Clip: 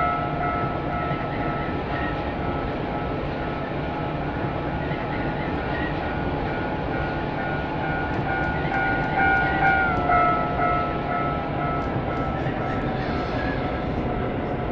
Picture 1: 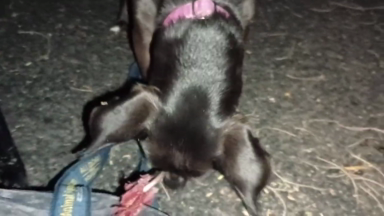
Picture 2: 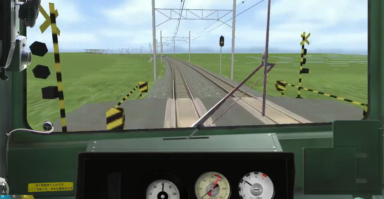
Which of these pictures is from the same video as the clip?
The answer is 2